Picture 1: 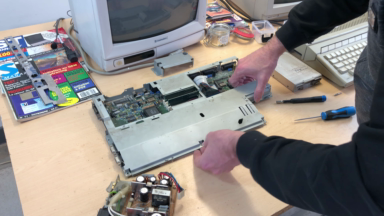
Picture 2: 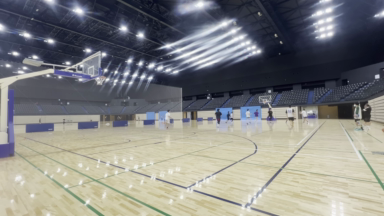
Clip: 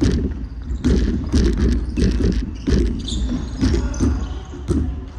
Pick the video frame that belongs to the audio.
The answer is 2